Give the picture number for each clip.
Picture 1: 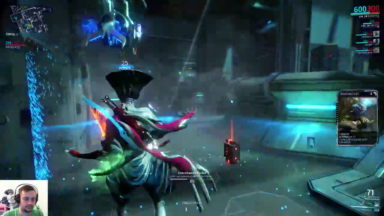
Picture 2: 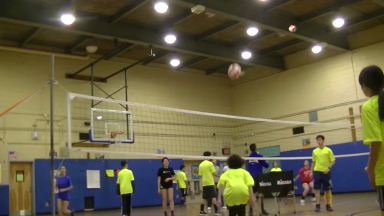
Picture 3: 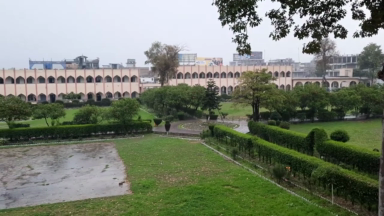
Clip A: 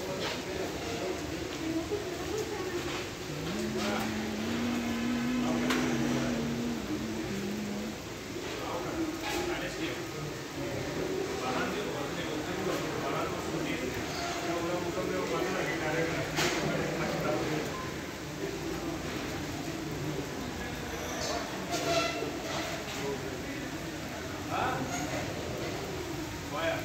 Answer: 3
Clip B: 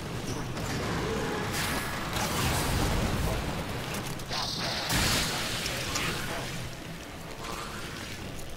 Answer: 1